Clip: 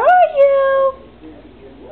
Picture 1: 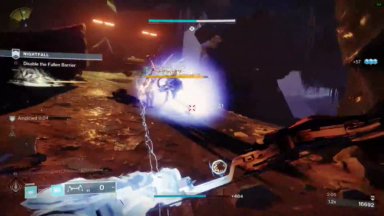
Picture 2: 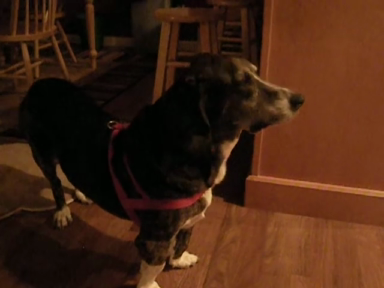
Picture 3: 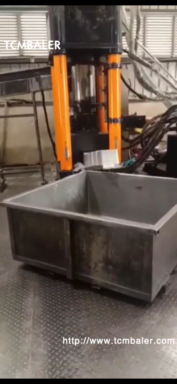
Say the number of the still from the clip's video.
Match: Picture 2